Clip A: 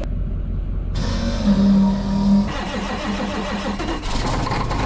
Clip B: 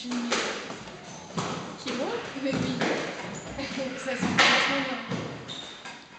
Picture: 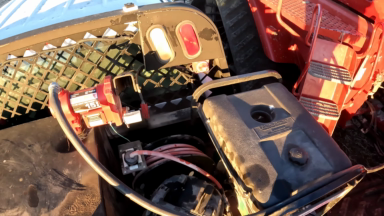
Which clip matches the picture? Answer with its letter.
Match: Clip A